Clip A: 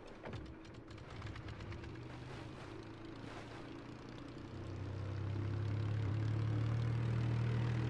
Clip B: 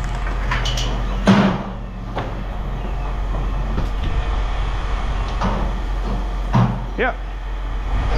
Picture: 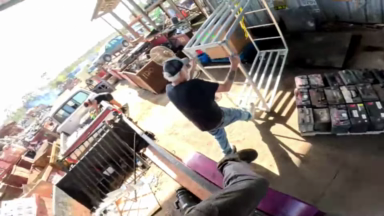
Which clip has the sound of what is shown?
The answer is B